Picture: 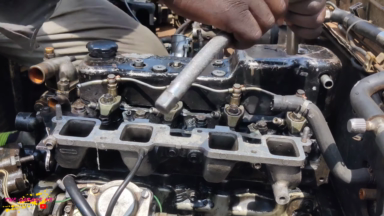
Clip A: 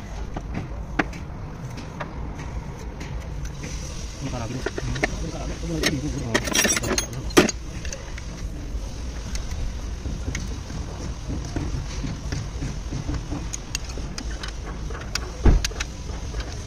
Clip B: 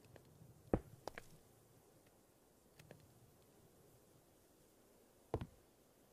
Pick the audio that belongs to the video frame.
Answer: A